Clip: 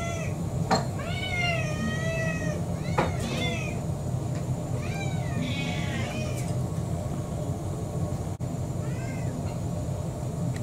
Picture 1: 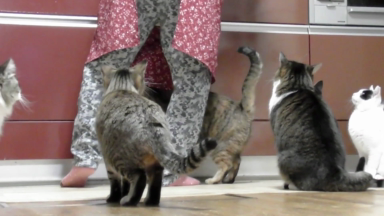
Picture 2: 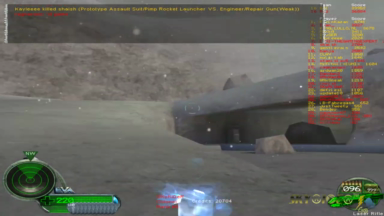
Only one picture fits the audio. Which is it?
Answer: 1